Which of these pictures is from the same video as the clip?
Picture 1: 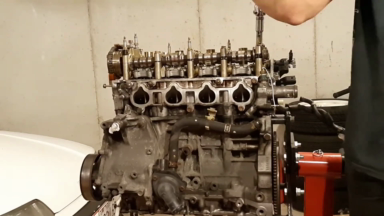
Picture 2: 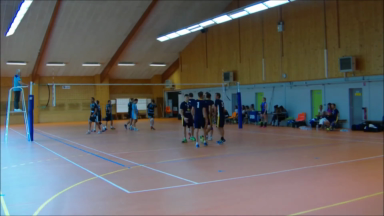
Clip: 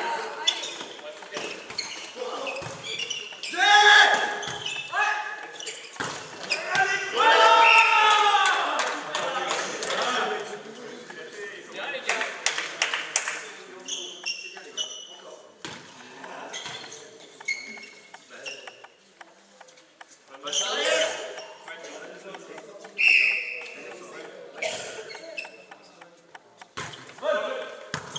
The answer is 2